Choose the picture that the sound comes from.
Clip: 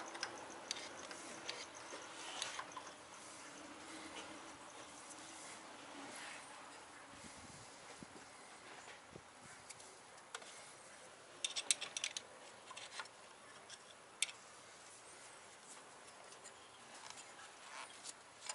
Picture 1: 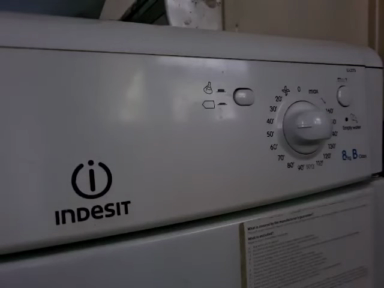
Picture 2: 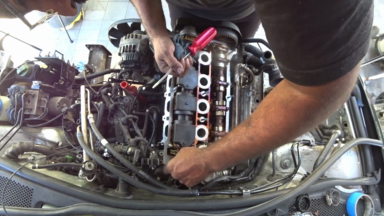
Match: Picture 2